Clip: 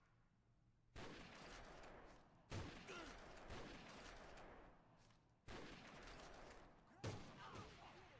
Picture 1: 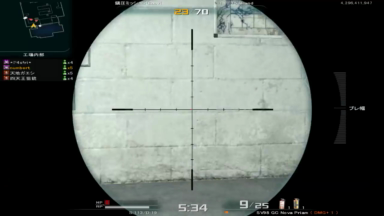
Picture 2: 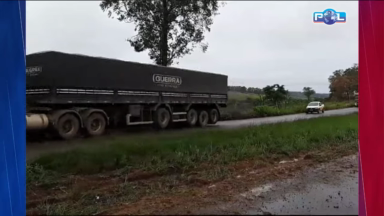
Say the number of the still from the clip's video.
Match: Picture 1